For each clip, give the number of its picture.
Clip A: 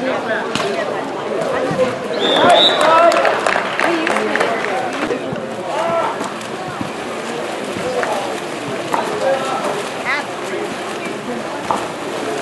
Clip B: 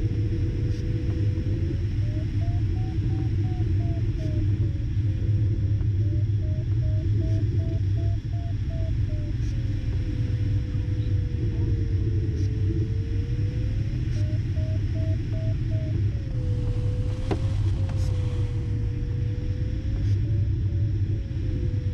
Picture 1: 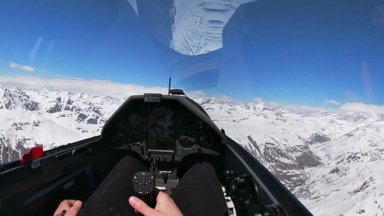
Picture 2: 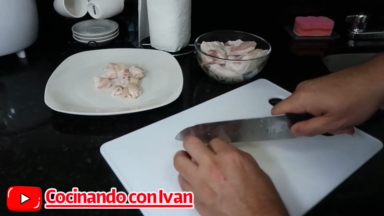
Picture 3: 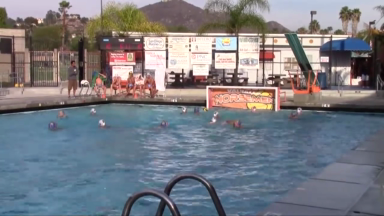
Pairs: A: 3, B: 1